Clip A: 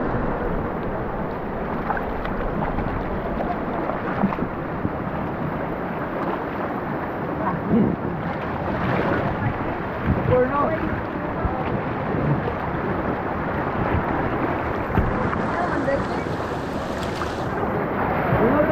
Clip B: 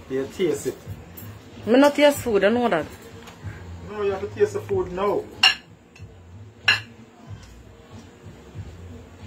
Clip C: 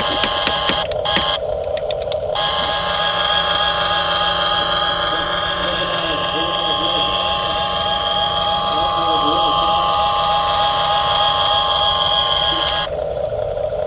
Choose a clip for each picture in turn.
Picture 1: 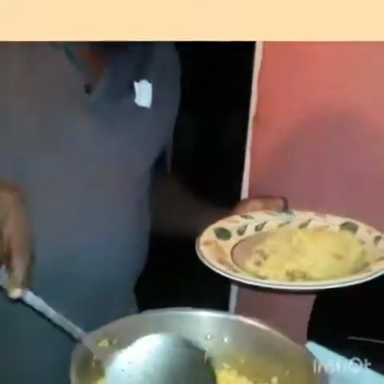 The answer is B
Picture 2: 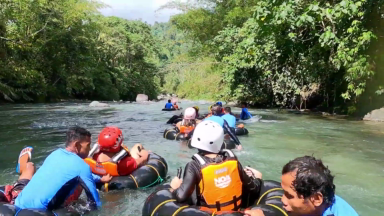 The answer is A